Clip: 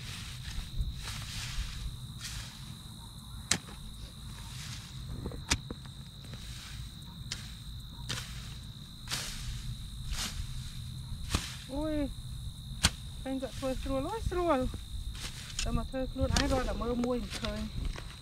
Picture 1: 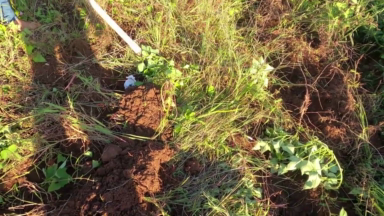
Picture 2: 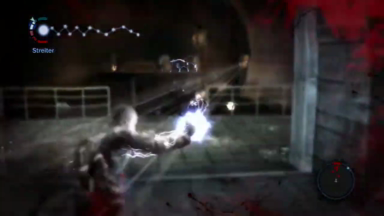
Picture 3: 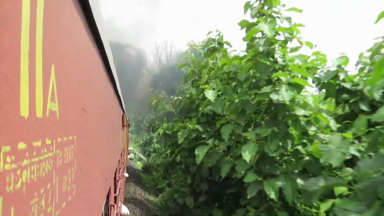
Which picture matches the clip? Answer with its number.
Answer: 1